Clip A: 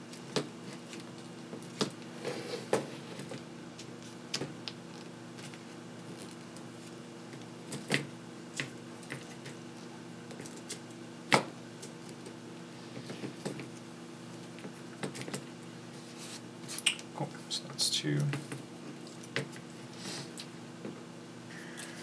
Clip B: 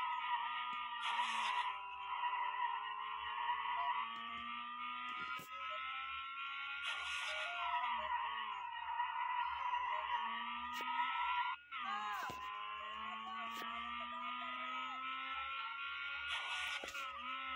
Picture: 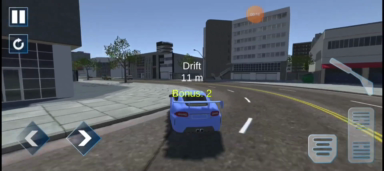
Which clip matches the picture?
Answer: B